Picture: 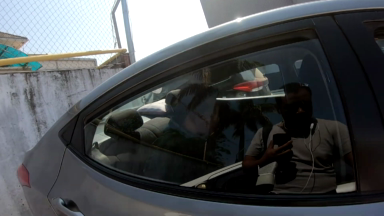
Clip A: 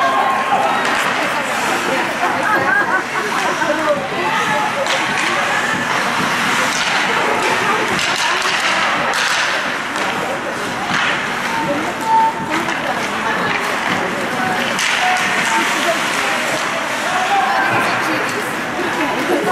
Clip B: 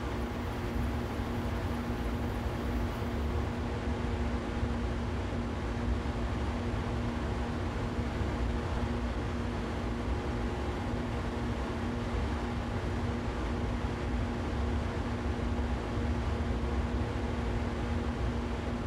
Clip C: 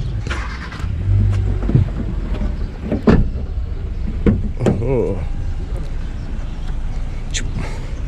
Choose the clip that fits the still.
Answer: C